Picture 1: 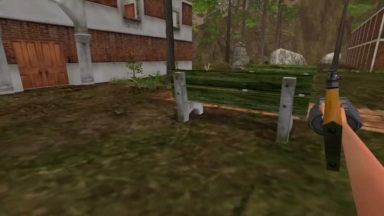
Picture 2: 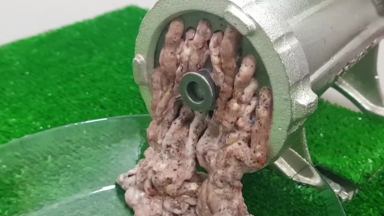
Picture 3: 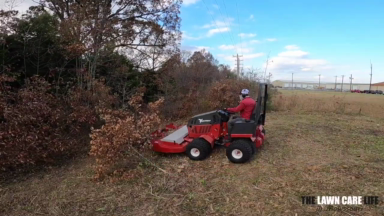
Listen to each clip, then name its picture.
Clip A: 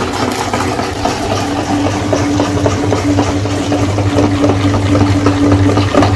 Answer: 2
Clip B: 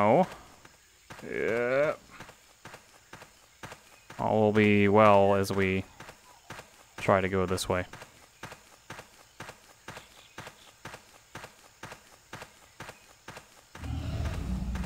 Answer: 1